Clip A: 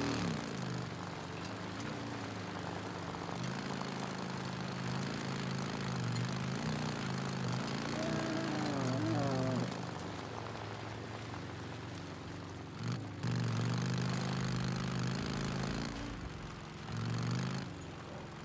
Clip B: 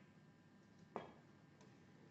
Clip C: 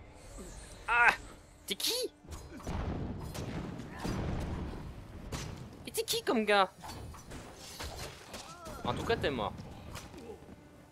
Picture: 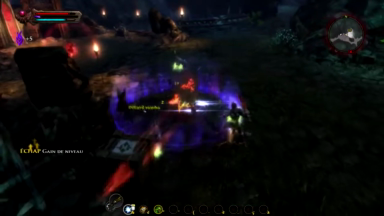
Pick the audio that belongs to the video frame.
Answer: C